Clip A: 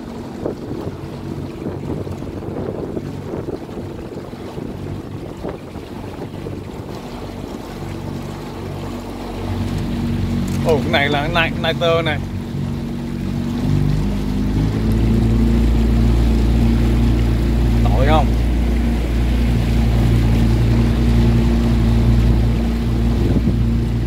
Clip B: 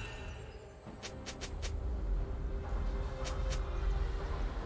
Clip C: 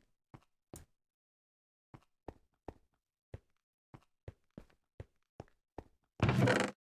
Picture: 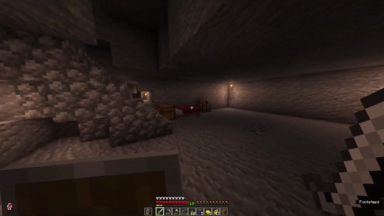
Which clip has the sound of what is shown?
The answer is C